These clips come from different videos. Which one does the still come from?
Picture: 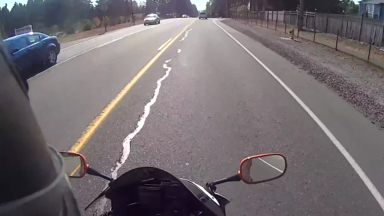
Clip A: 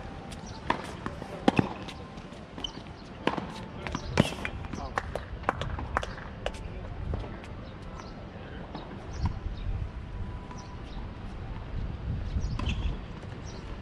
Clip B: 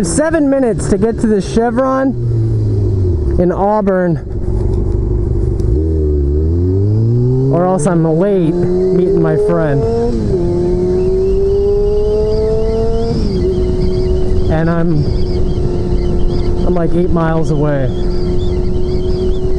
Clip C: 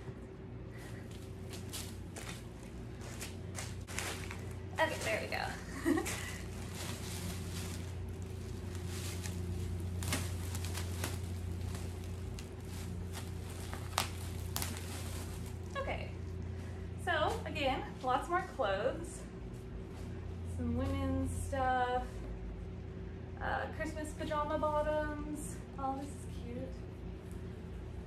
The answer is B